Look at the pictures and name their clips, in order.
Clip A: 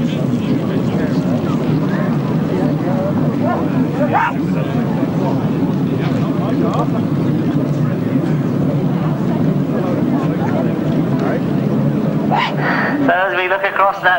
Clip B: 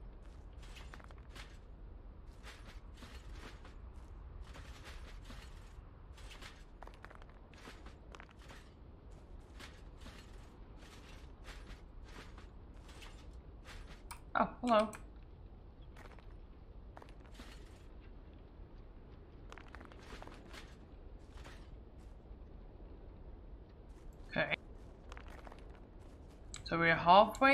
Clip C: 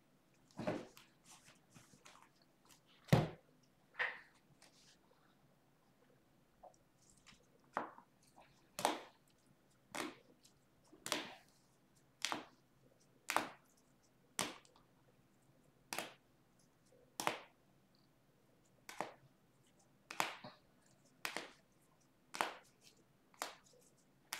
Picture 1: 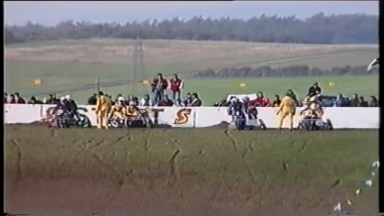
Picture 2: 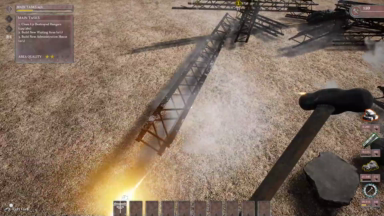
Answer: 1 A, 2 B